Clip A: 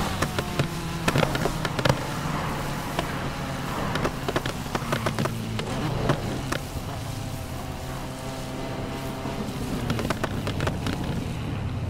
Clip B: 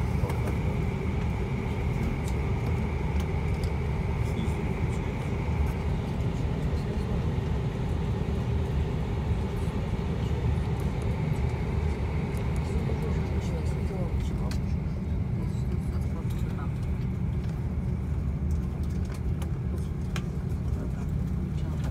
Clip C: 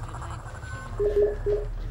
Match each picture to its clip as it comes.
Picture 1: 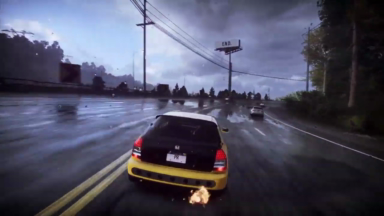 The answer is A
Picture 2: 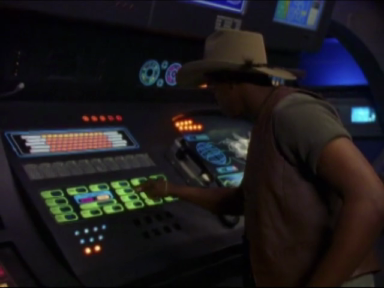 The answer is C